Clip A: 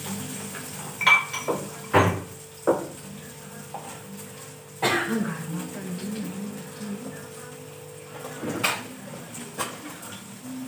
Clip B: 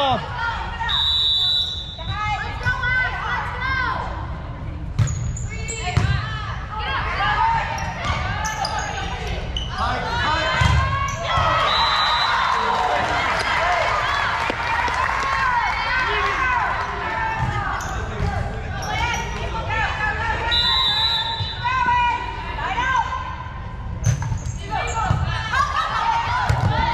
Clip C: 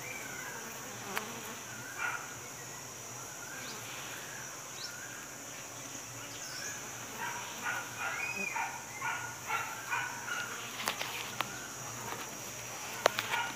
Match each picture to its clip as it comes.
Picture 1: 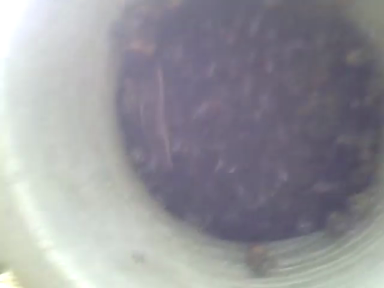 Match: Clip C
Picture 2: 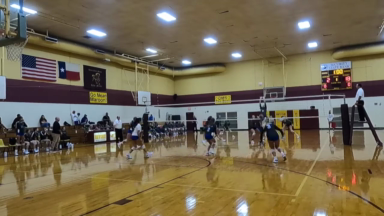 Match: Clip B